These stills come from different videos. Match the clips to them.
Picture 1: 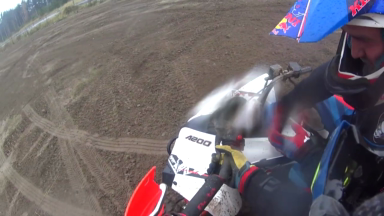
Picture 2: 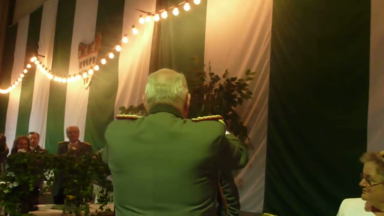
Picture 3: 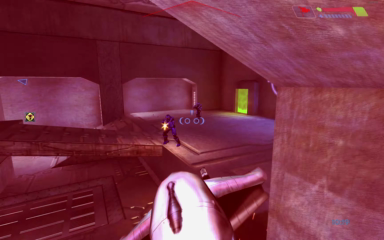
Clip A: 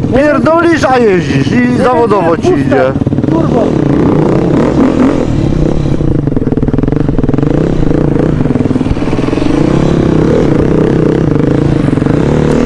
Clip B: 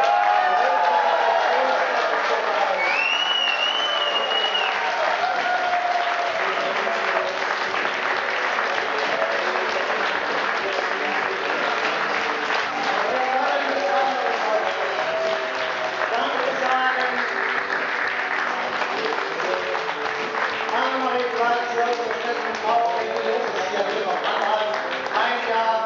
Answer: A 1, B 2